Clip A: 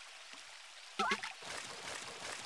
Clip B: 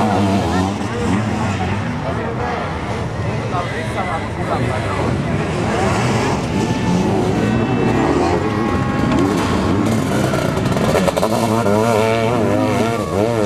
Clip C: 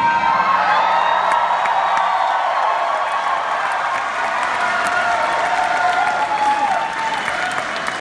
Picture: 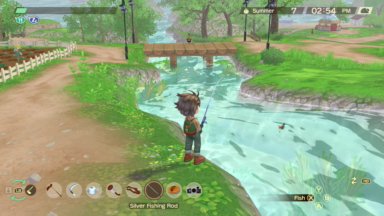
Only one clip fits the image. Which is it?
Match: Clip A